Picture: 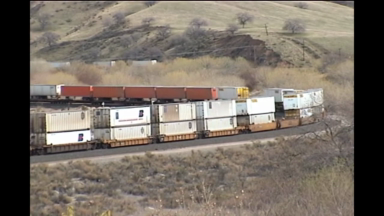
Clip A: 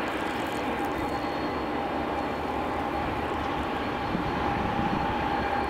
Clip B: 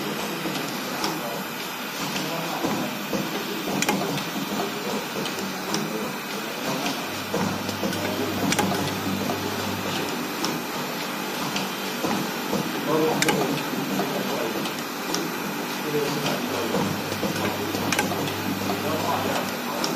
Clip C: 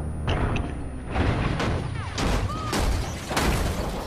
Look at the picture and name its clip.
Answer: A